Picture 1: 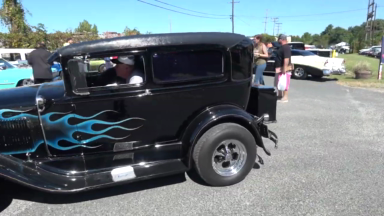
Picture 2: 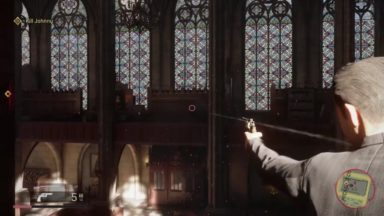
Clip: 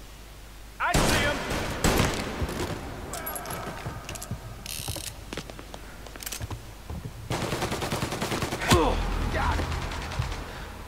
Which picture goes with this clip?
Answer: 2